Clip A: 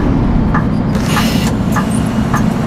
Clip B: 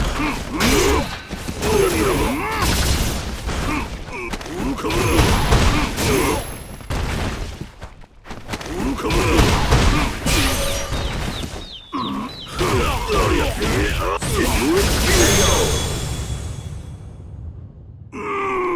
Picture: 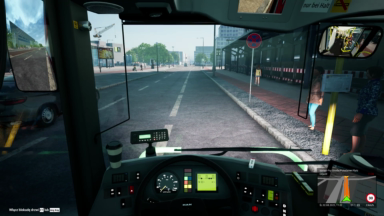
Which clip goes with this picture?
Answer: A